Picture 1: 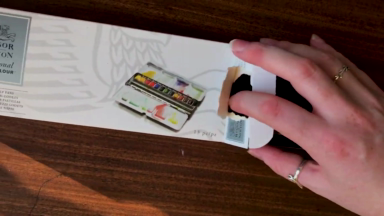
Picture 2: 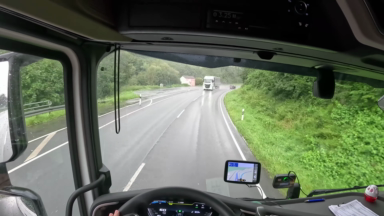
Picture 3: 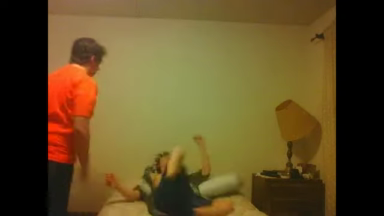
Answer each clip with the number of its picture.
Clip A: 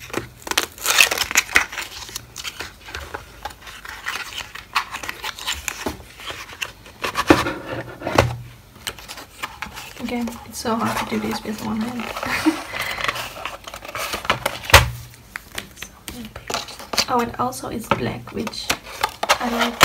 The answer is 1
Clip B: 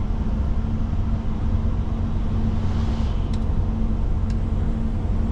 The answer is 2